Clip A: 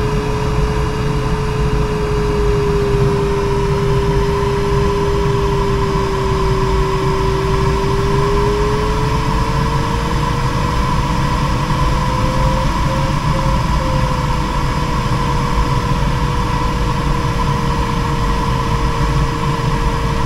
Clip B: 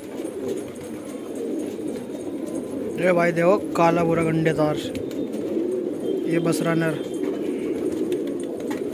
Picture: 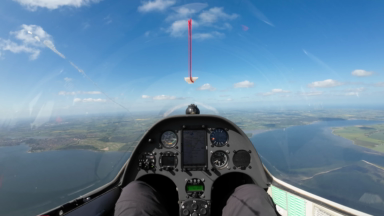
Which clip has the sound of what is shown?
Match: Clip A